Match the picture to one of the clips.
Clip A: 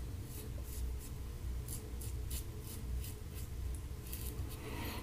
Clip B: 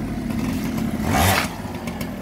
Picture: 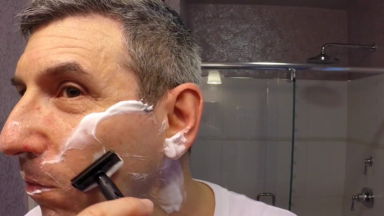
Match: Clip A